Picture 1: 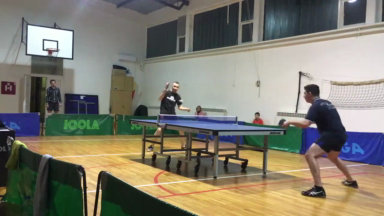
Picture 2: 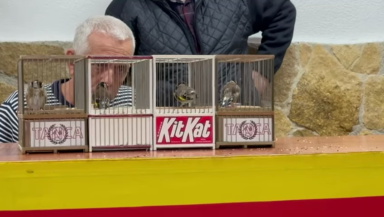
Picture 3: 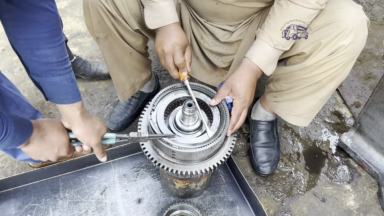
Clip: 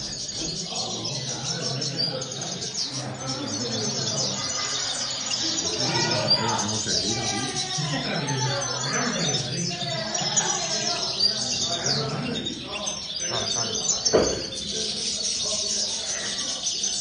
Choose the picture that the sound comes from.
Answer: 2